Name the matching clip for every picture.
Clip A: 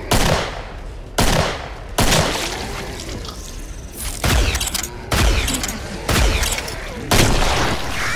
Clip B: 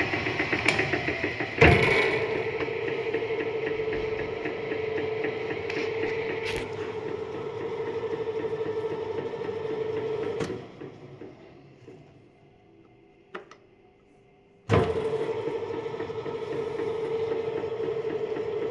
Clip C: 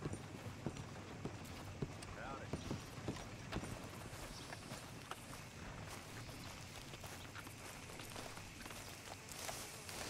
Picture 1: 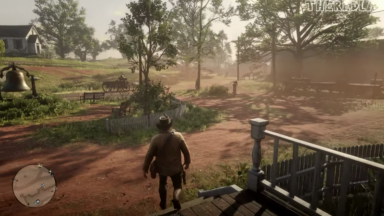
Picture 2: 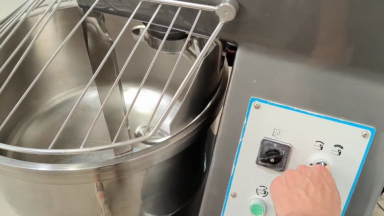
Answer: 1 C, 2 B